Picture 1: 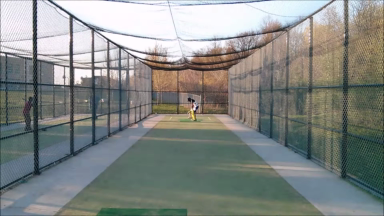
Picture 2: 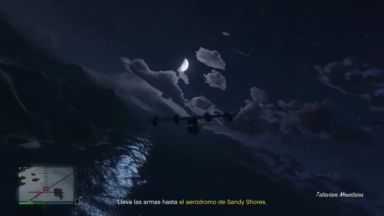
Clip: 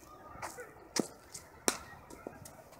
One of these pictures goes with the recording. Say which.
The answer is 1